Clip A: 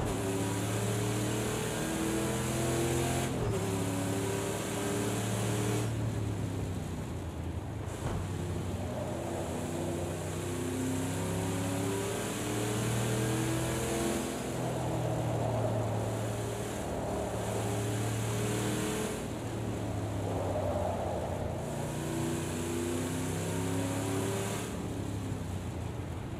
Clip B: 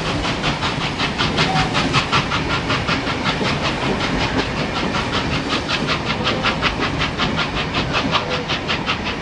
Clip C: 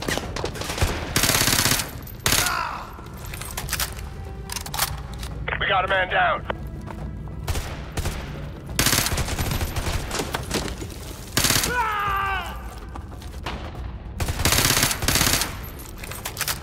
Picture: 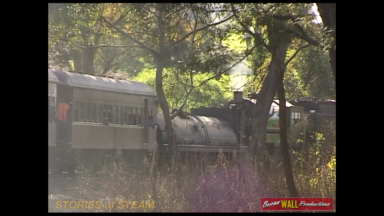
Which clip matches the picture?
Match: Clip B